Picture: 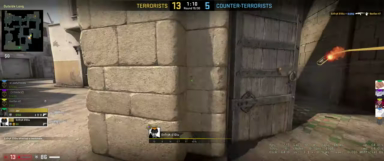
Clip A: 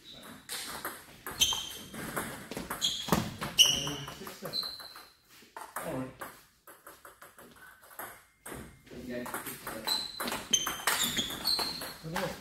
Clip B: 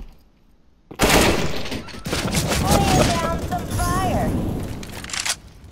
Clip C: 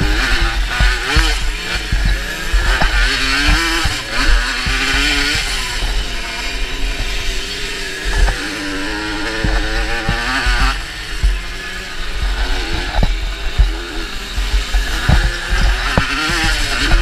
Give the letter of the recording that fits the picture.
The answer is B